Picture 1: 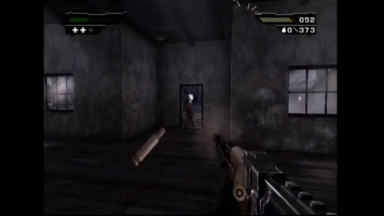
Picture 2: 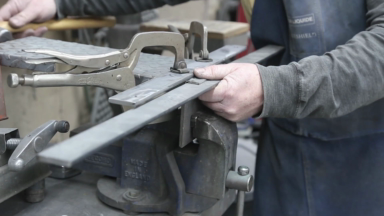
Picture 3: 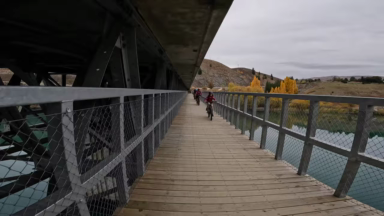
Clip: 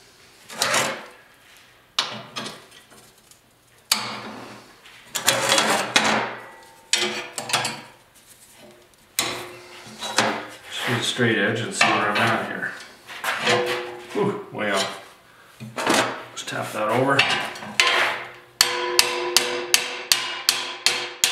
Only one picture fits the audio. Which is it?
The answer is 2